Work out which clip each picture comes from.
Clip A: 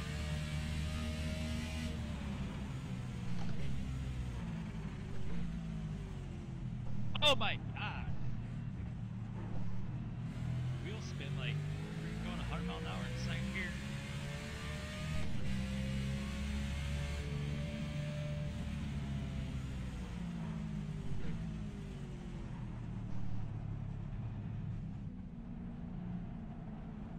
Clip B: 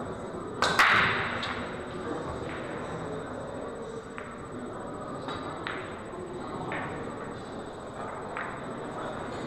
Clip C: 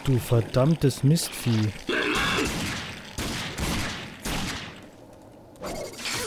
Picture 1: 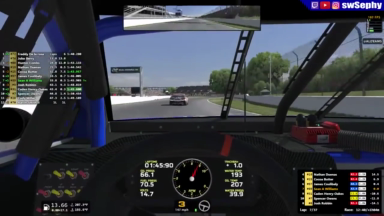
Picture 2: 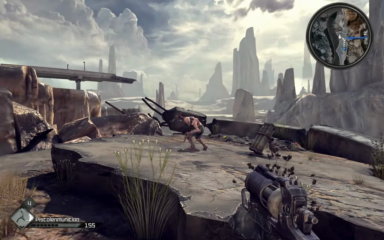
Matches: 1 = A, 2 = C